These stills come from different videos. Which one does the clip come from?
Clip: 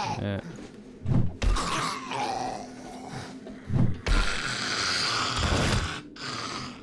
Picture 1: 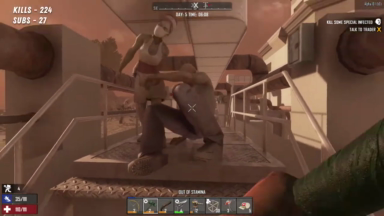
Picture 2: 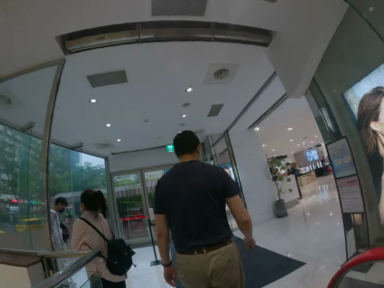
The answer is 1